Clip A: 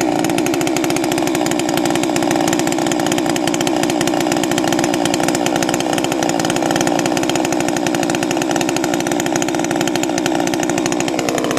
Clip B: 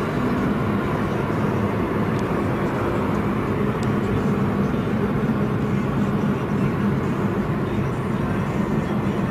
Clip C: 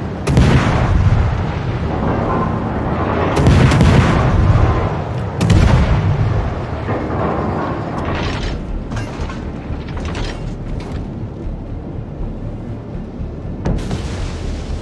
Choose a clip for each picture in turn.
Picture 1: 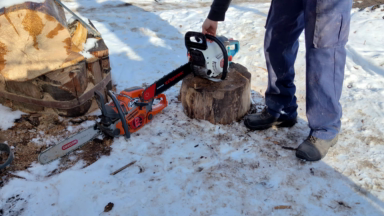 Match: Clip A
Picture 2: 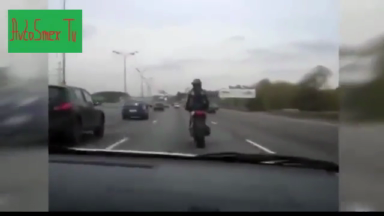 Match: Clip B